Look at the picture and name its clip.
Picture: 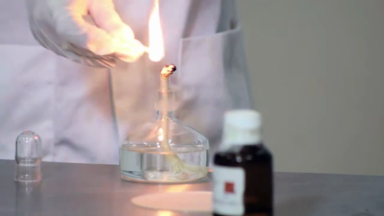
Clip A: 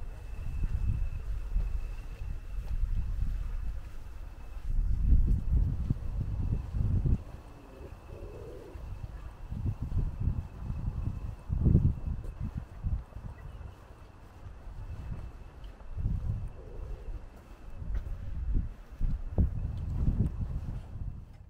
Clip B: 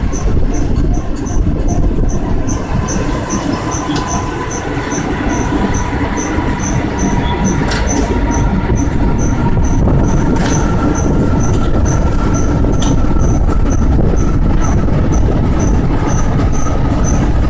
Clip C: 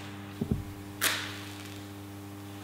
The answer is C